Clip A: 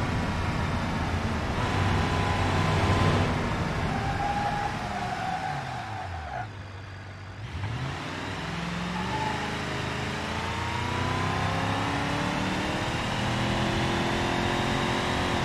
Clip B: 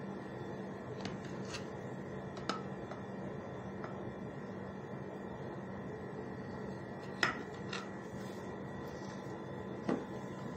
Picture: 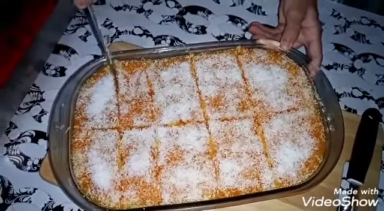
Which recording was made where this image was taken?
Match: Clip B